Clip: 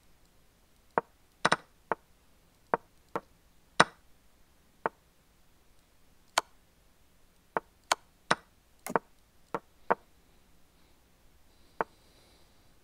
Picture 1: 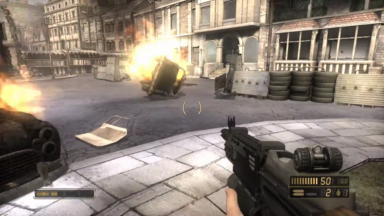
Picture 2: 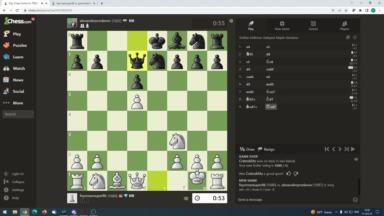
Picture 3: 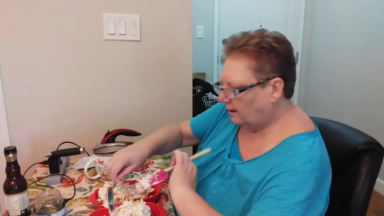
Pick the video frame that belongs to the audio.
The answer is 2